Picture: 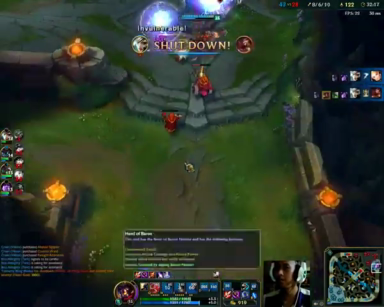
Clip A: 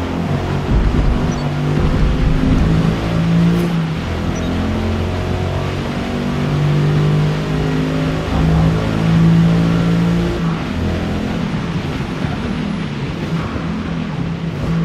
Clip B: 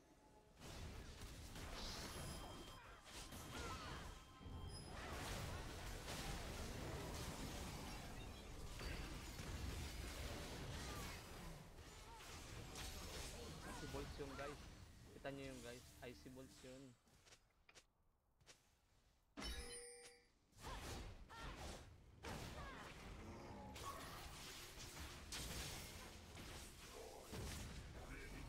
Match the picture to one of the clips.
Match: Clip B